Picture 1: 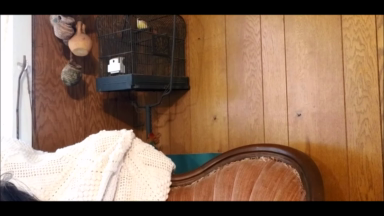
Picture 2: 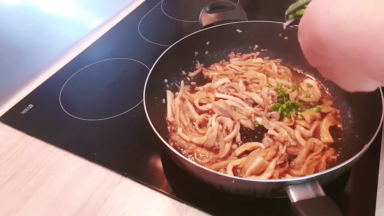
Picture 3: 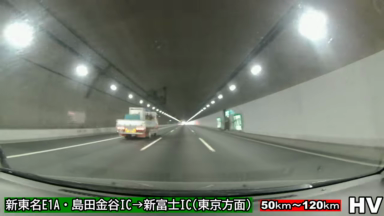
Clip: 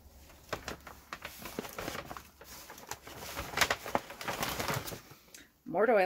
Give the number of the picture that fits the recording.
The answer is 1